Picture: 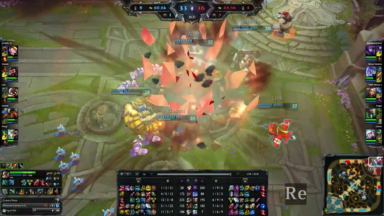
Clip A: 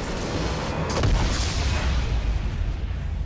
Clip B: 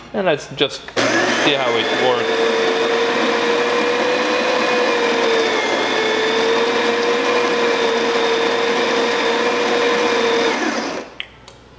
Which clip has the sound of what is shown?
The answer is A